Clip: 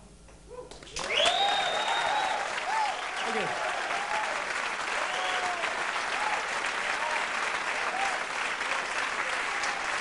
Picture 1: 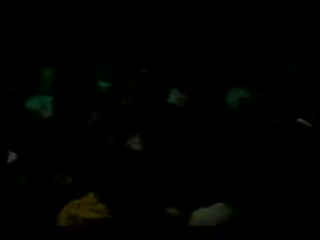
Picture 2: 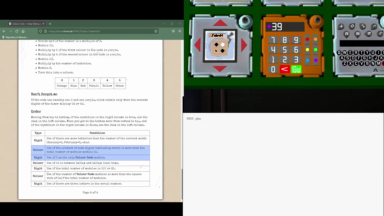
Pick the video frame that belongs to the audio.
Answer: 1